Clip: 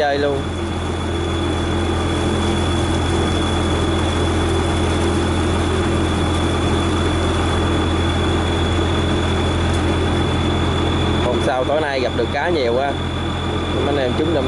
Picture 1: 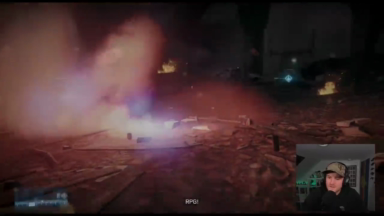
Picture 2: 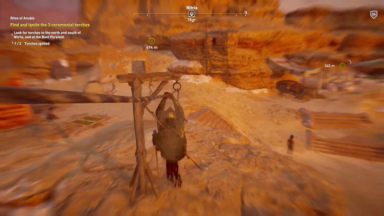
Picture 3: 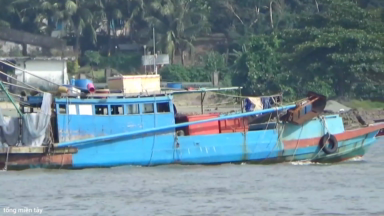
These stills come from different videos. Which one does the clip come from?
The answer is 3